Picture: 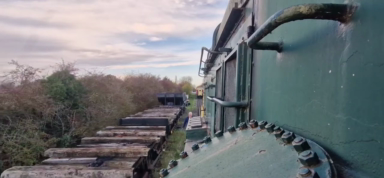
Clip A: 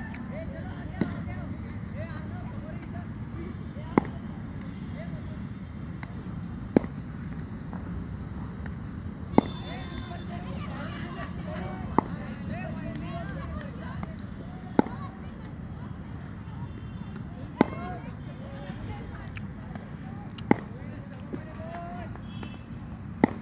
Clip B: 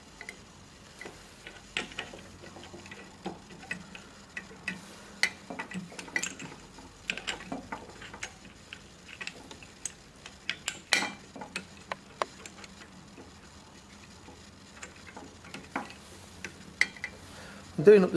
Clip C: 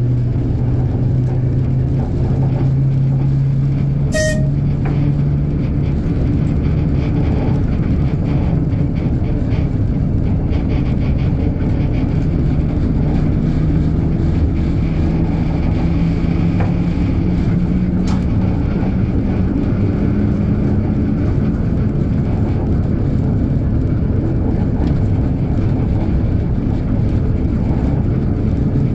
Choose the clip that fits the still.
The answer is C